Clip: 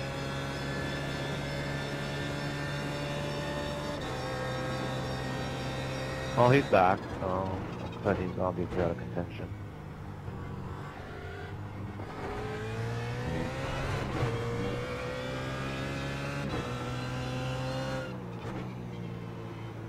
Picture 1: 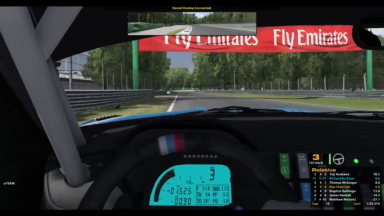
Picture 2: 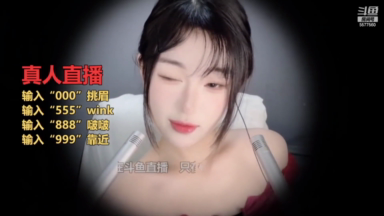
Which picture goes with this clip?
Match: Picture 1